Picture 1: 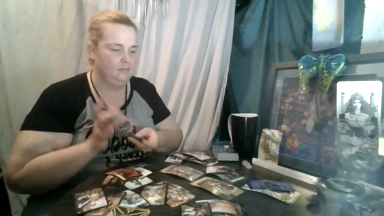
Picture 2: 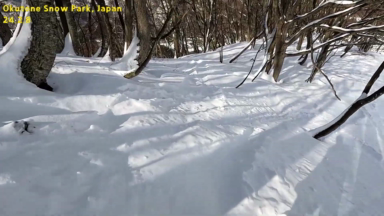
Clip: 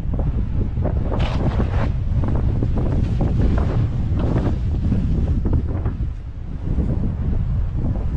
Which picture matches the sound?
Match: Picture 2